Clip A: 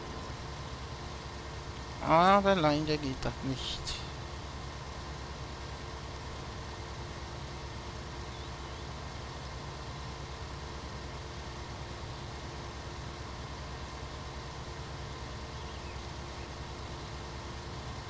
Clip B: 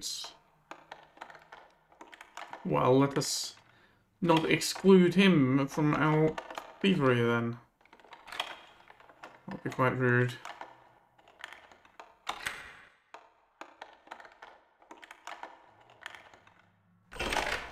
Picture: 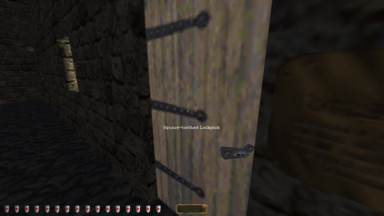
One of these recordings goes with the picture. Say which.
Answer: B